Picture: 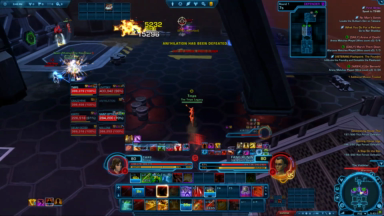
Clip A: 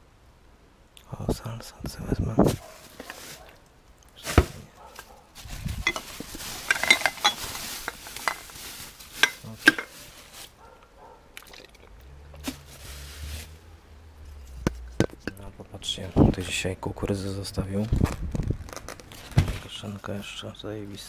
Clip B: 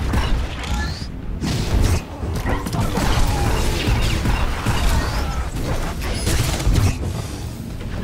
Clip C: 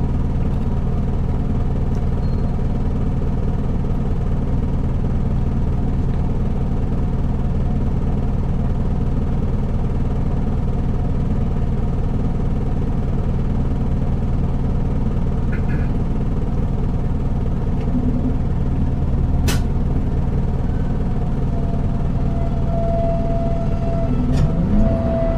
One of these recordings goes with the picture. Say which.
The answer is B